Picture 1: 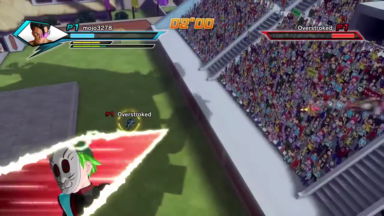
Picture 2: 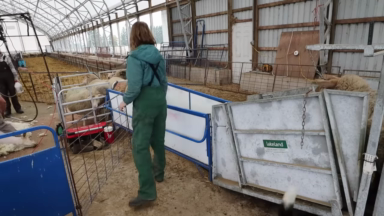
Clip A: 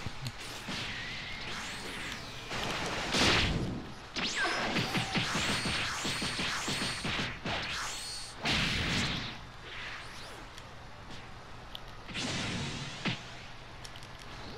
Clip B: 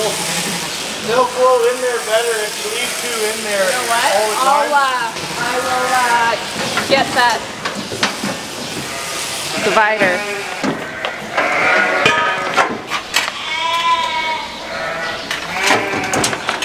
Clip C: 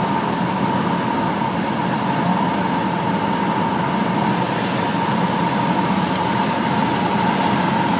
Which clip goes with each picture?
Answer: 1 A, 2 B